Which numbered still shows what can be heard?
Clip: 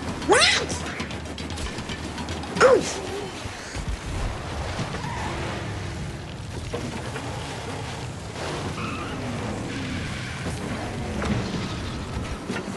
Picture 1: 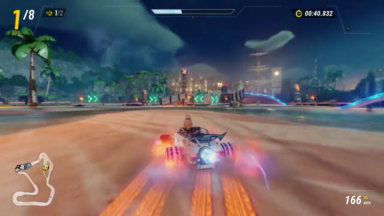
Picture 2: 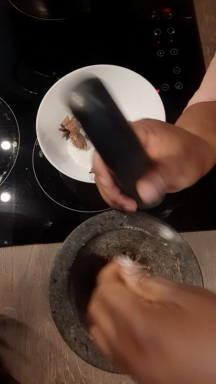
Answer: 1